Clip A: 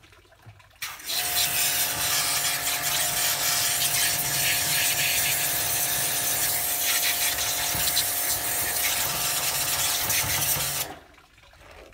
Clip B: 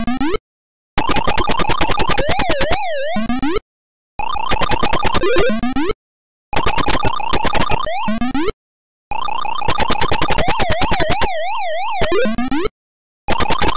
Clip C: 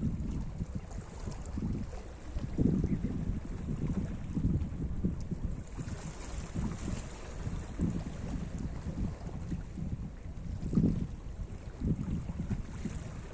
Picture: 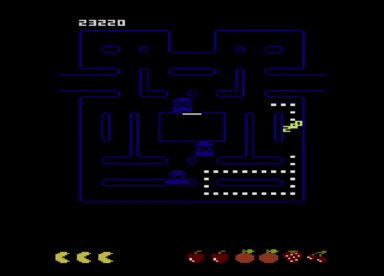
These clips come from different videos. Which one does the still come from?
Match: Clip B